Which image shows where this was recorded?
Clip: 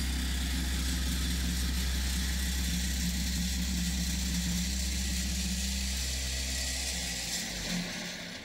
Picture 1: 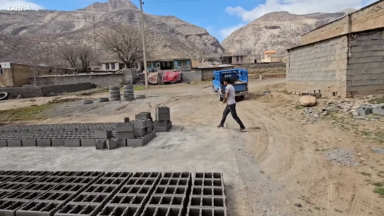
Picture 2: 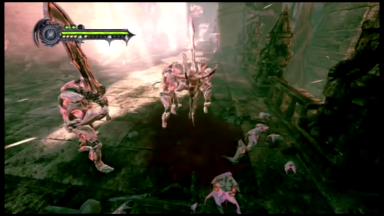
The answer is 1